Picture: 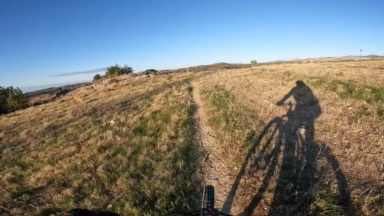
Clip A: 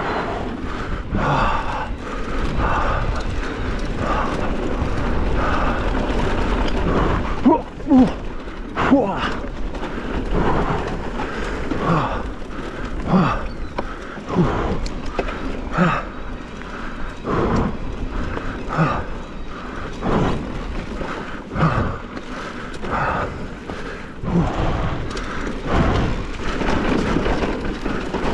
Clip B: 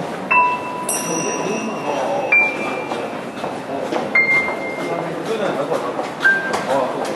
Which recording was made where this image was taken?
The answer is A